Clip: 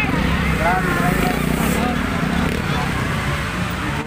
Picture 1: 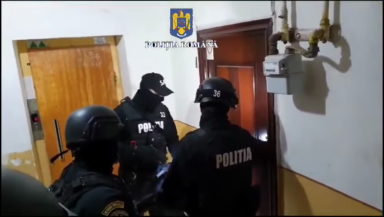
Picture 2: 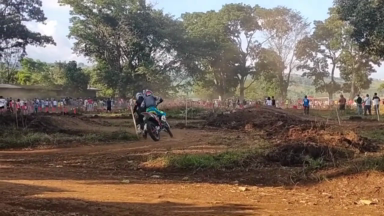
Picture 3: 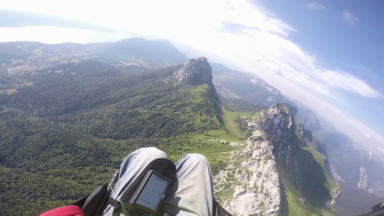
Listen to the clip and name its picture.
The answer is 2